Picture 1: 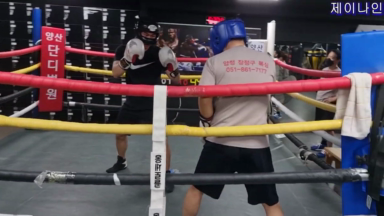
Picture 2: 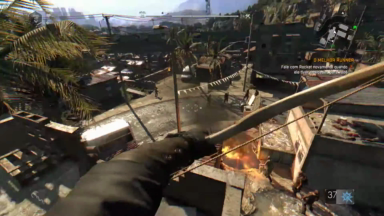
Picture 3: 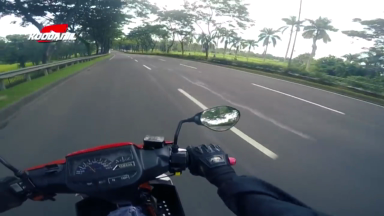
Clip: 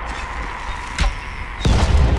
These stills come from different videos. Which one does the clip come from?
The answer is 2